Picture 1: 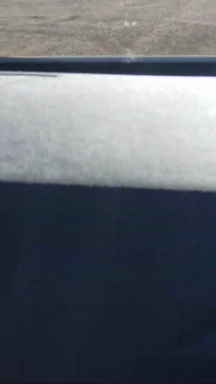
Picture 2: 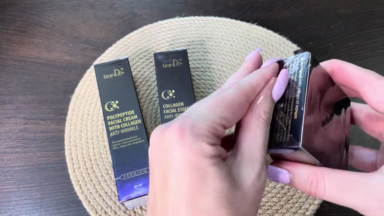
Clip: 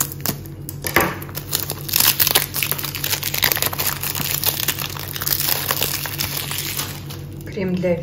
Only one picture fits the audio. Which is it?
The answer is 2